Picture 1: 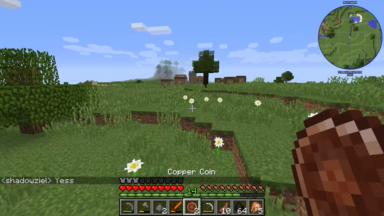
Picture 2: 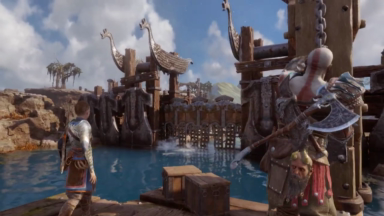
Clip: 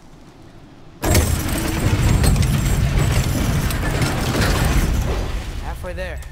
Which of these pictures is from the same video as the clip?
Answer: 2